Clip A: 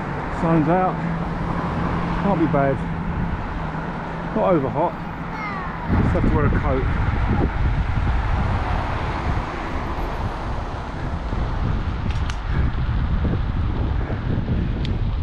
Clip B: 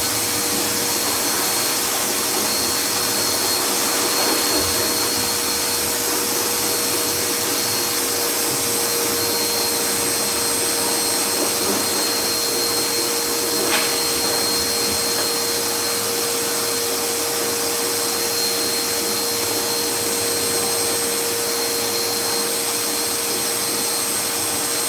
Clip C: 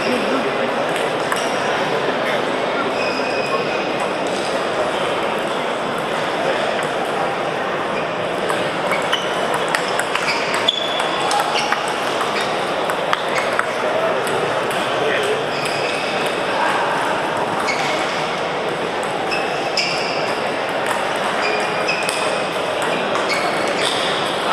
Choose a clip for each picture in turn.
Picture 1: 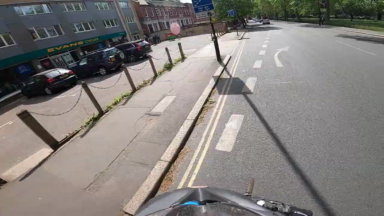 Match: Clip A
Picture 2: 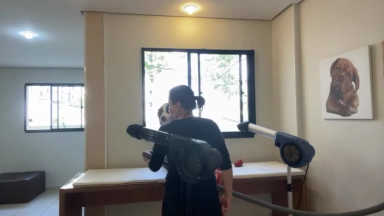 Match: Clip B